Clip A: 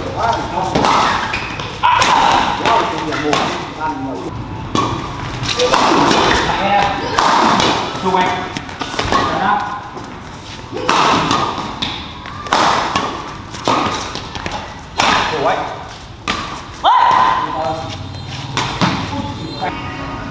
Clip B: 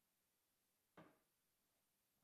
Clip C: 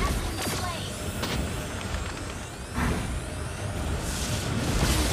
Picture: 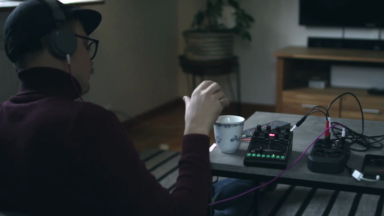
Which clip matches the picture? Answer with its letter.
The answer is B